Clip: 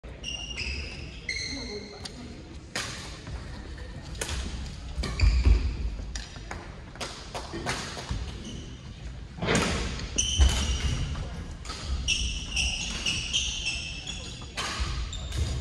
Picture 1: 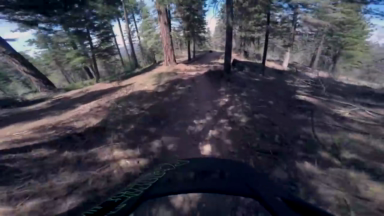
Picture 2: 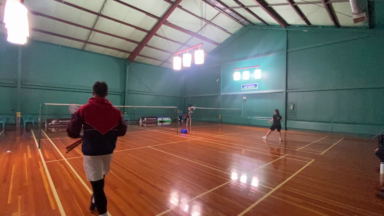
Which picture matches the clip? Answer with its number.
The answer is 2